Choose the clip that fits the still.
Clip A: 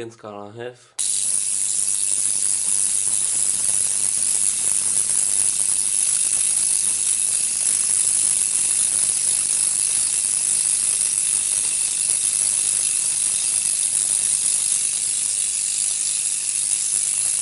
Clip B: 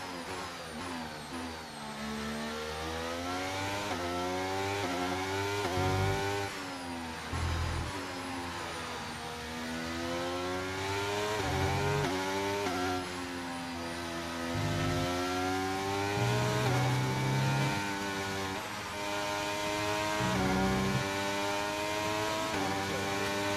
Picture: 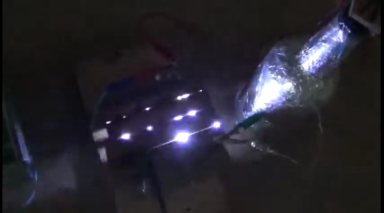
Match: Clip A